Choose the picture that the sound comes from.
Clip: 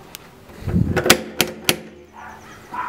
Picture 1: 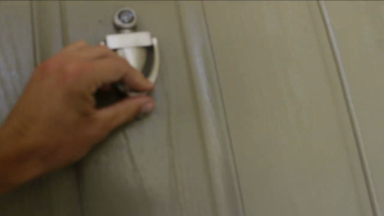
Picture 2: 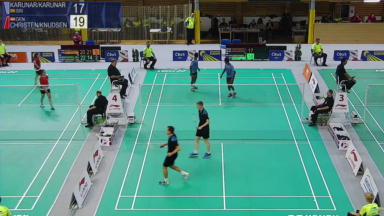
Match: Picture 1